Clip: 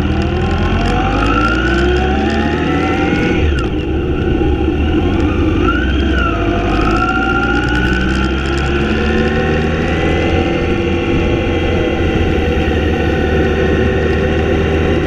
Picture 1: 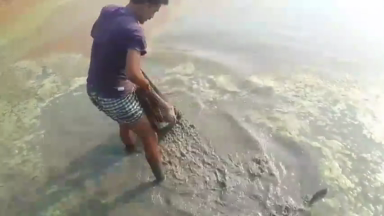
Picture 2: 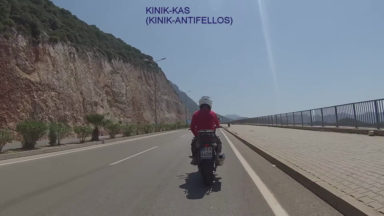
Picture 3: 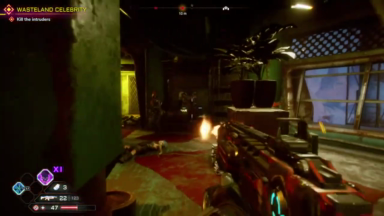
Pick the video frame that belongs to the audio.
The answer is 2